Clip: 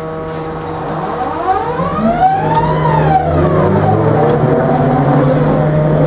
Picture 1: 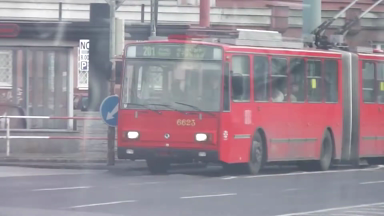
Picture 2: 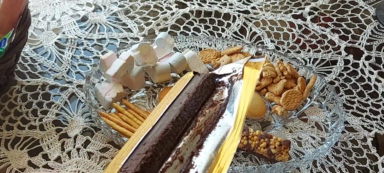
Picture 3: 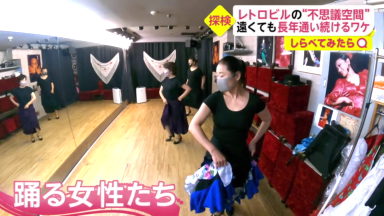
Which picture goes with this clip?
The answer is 1